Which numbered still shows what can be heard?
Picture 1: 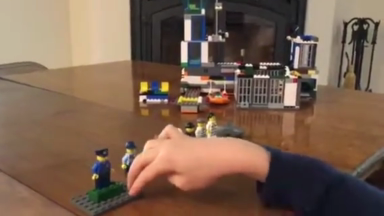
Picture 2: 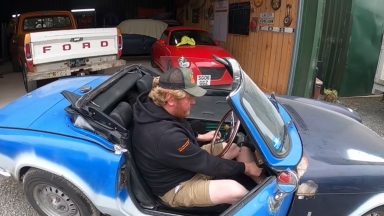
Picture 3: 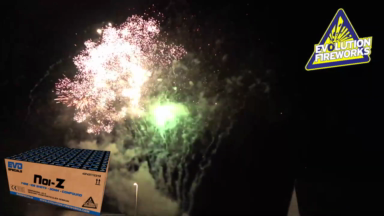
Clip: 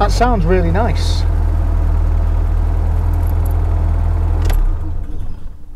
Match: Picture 2